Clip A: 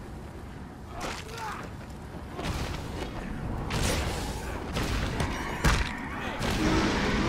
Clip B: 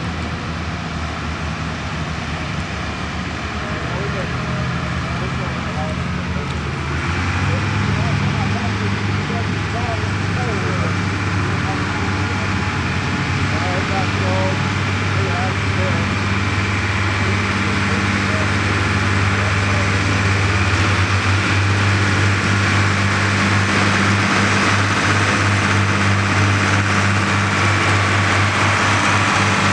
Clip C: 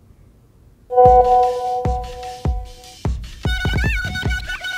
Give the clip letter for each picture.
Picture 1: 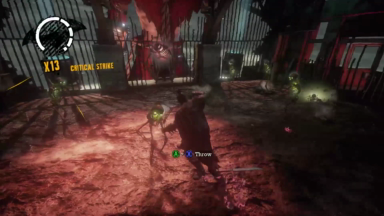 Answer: A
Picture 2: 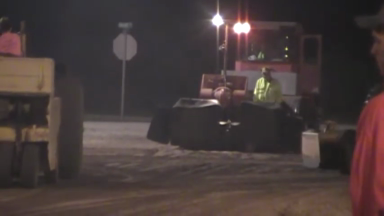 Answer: B